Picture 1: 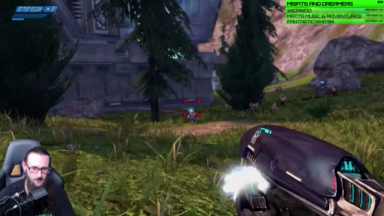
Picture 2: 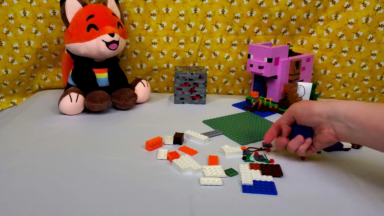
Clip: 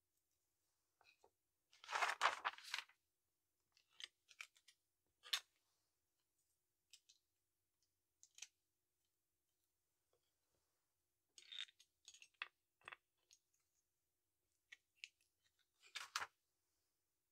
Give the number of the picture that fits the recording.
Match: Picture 2